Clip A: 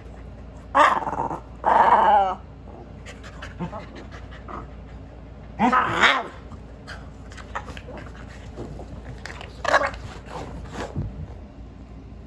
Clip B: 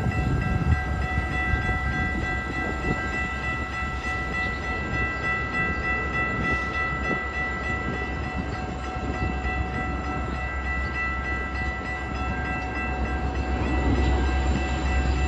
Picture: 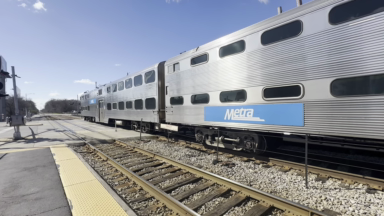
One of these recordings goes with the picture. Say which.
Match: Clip B